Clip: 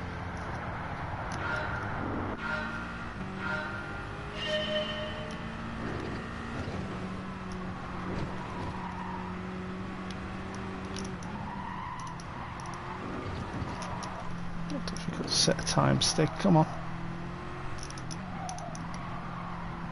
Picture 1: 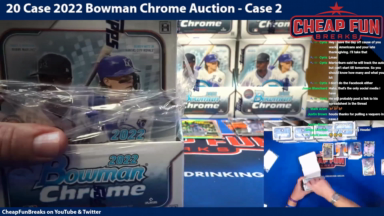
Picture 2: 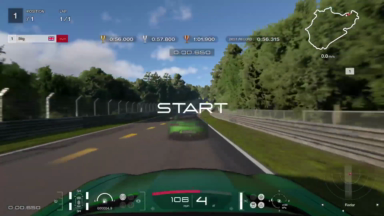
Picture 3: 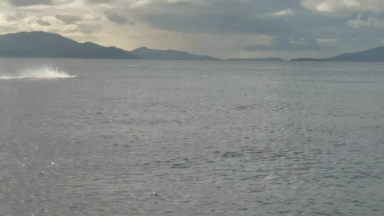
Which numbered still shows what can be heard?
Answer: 2